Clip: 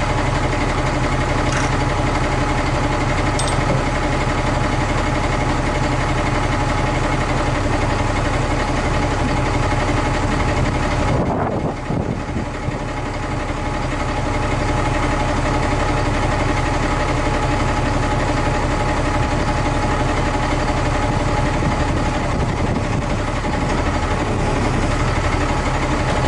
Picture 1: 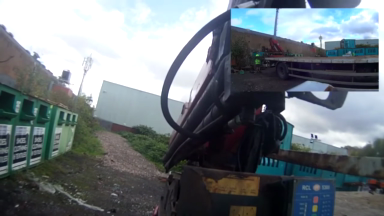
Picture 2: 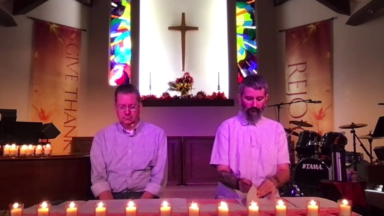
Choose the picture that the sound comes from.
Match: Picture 1